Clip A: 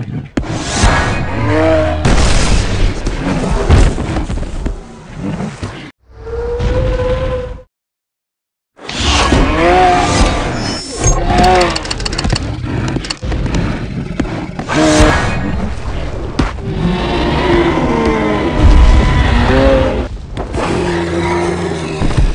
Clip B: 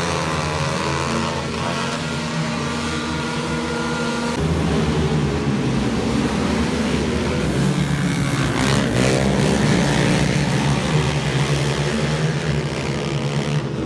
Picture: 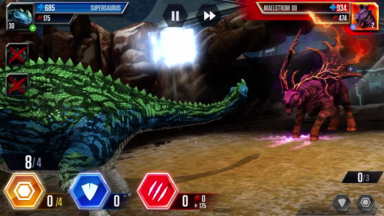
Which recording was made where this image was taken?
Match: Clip A